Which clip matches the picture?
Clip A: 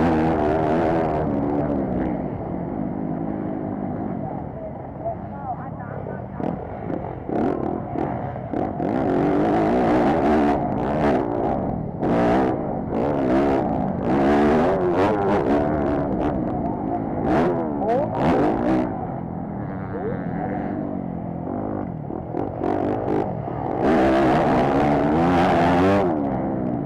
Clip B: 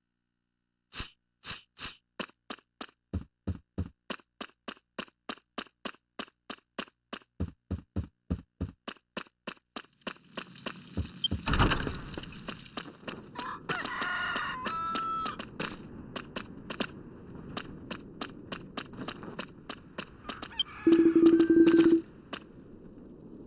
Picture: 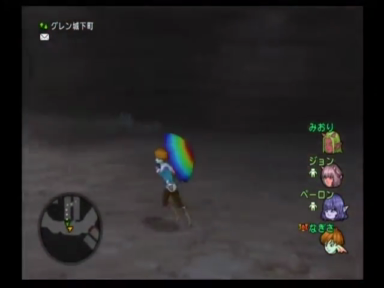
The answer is B